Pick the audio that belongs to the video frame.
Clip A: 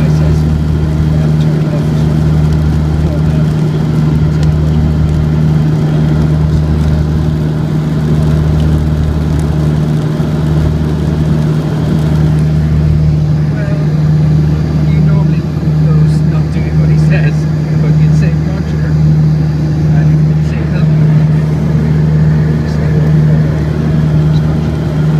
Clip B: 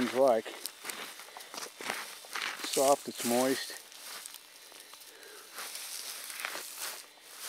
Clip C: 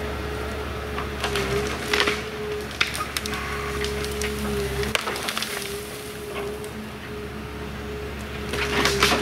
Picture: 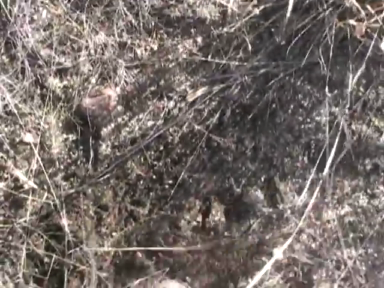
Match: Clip B